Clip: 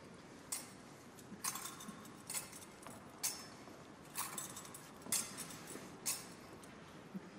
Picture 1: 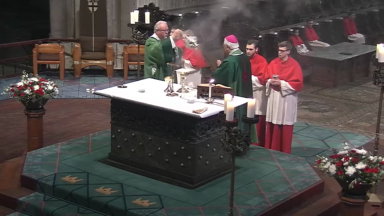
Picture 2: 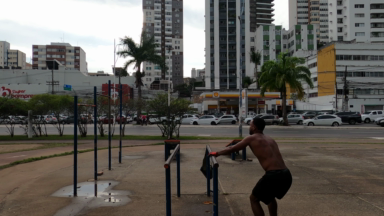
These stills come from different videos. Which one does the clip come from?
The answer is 1